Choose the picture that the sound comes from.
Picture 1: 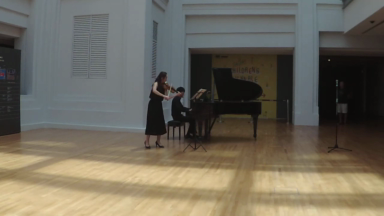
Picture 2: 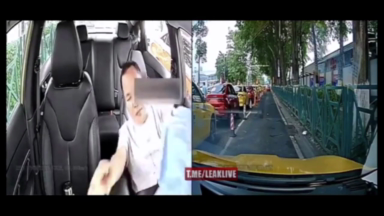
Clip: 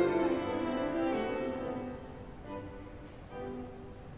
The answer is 1